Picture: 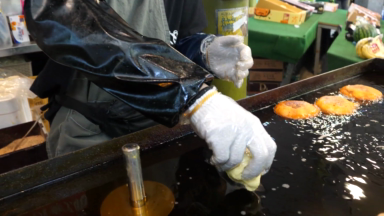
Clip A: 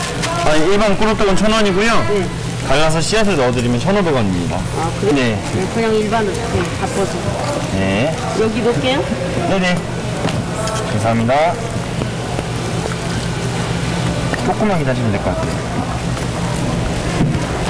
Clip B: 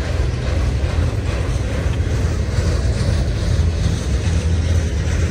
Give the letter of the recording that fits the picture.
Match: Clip A